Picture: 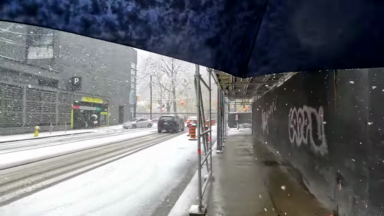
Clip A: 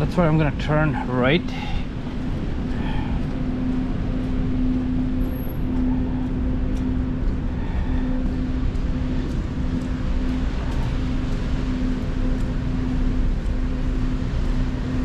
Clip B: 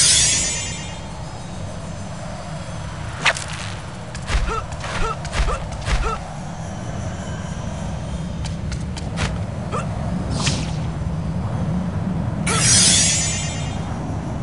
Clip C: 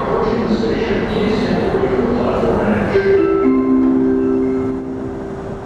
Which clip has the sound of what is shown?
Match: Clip A